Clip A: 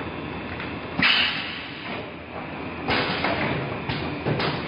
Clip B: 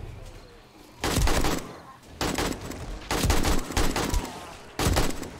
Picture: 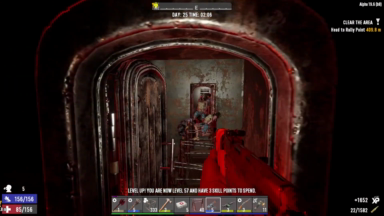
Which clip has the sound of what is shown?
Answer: B